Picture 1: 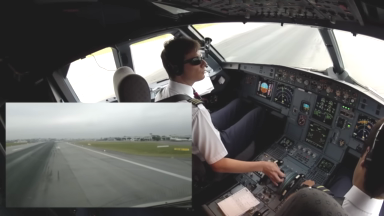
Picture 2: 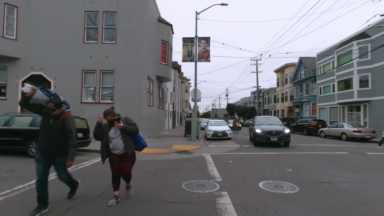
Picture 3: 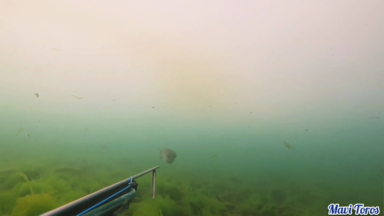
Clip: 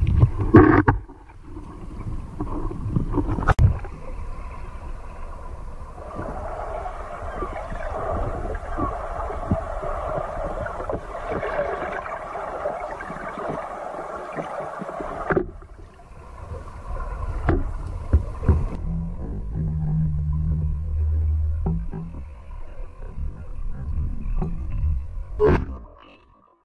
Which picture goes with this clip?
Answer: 3